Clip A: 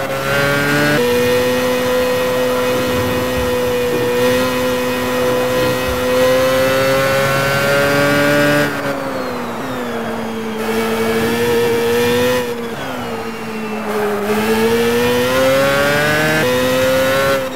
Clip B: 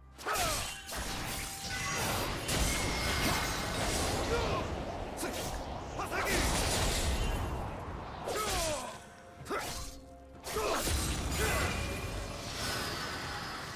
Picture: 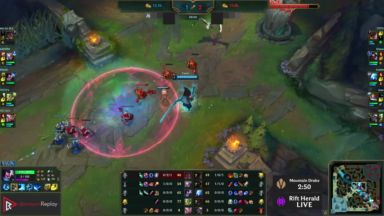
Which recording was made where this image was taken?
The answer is B